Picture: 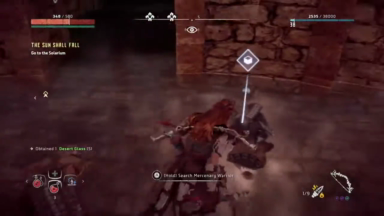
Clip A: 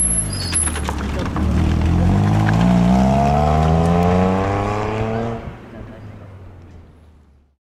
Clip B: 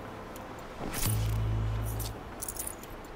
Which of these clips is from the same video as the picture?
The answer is B